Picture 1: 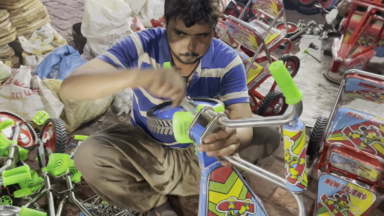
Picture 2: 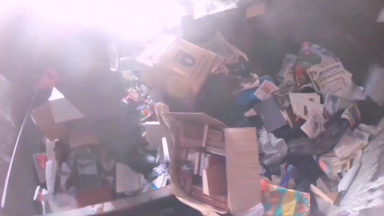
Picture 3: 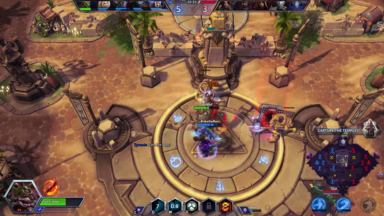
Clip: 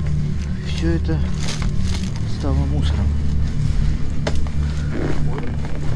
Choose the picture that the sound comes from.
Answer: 2